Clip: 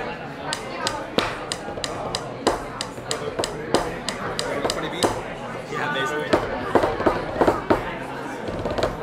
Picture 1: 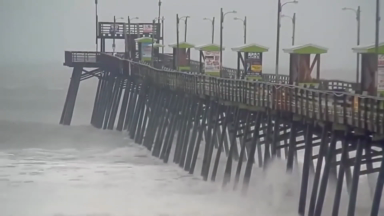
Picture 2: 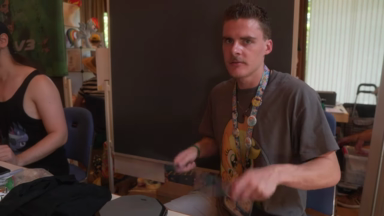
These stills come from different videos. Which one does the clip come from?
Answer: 2